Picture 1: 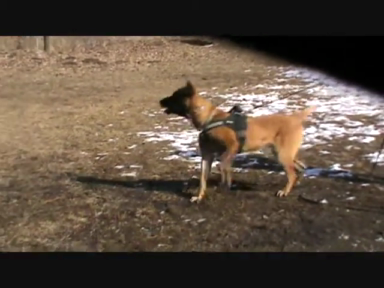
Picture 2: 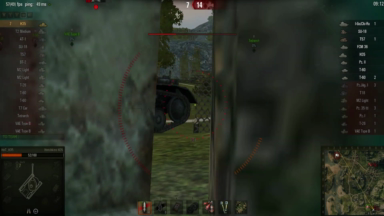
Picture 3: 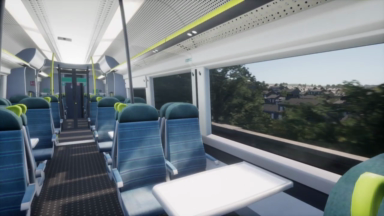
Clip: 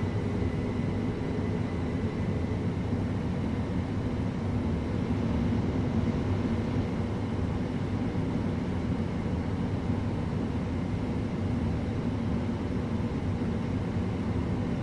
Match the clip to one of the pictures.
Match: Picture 3